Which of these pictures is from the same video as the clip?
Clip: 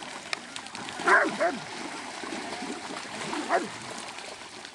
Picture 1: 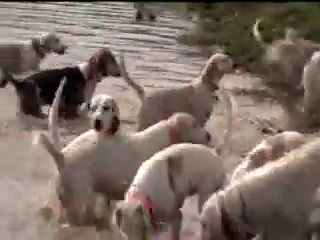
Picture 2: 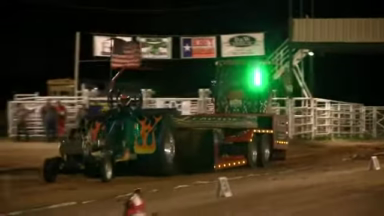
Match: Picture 1